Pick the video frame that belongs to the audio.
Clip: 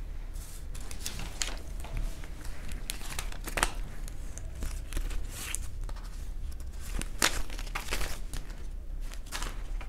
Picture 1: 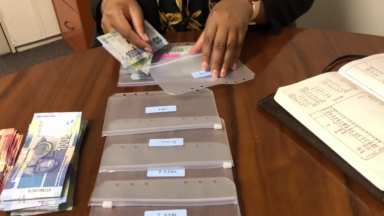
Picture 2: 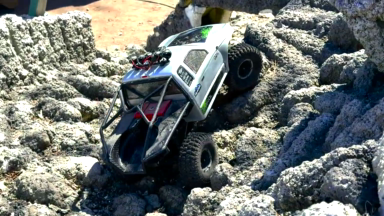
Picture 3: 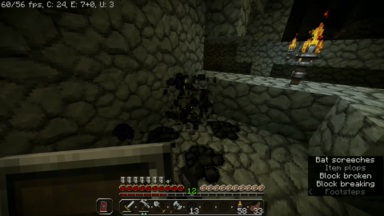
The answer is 1